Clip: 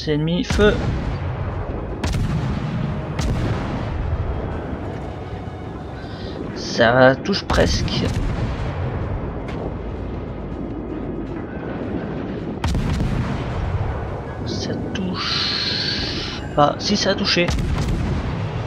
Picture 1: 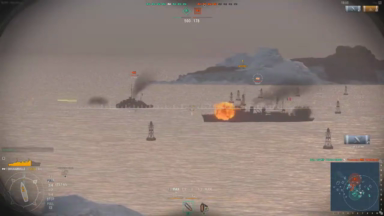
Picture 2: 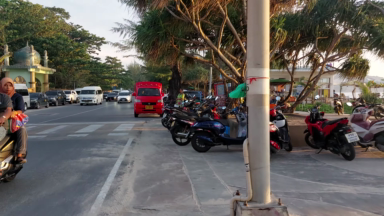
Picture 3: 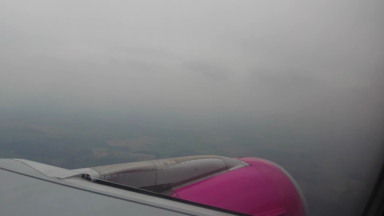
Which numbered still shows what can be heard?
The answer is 1